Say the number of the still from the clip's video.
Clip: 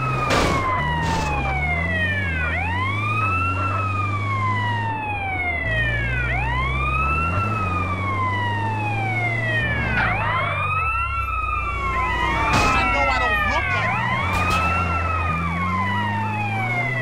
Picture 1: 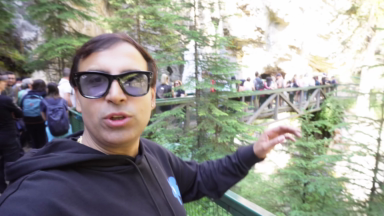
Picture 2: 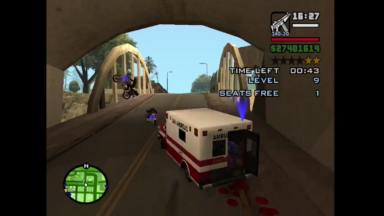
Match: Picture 2